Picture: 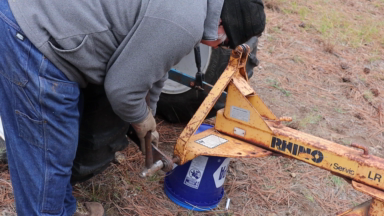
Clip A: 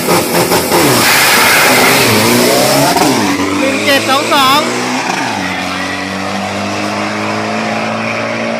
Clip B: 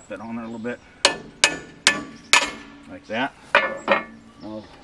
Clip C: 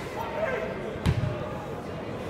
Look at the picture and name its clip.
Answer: B